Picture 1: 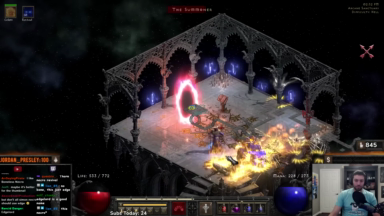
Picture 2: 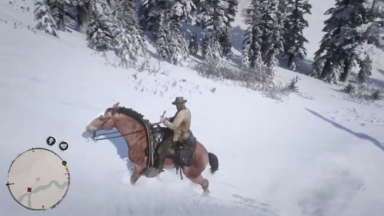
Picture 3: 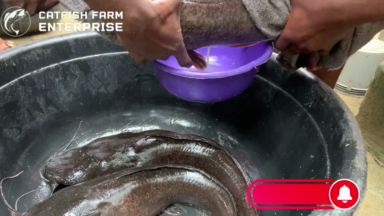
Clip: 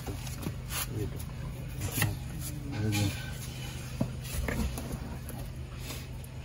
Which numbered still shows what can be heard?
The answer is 3